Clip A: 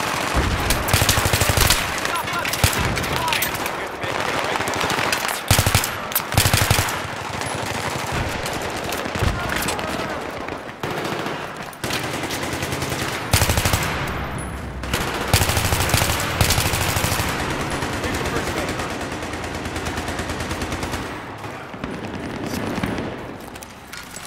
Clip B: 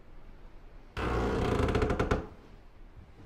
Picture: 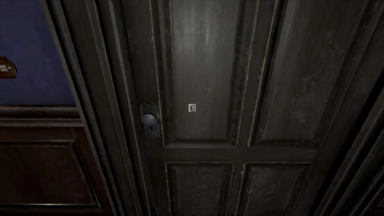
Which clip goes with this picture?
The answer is B